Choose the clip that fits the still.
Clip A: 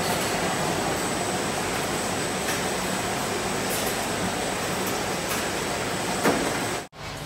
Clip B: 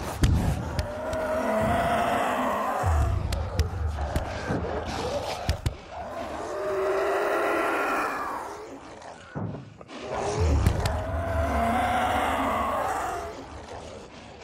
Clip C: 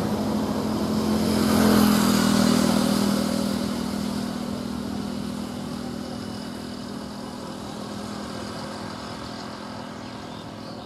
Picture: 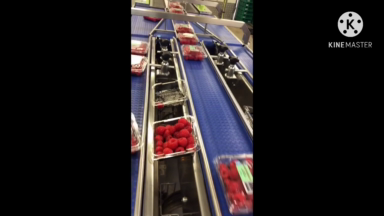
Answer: A